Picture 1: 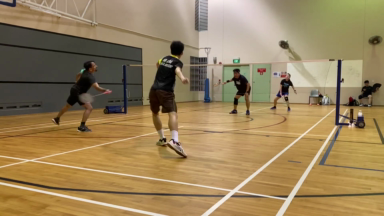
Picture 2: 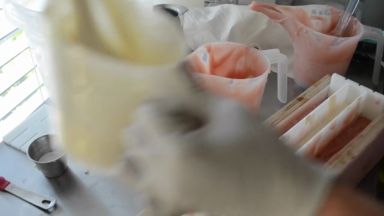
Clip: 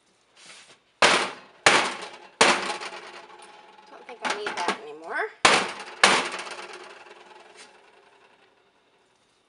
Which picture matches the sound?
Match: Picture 2